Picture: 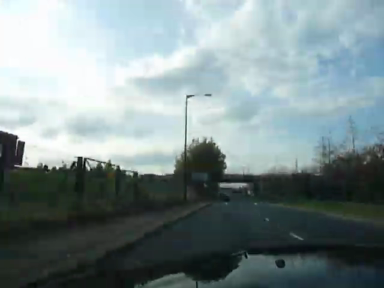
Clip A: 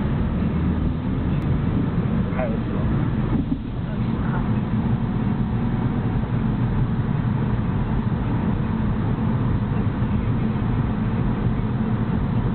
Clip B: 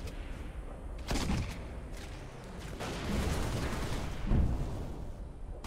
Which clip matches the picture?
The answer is A